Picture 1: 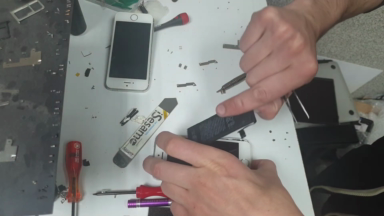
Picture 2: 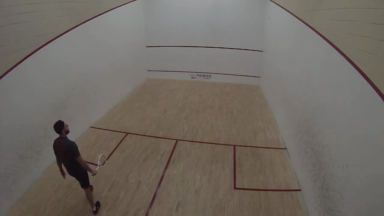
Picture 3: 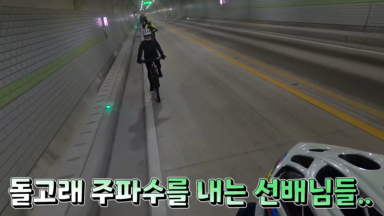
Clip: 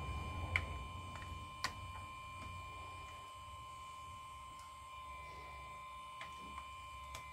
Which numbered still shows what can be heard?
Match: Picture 1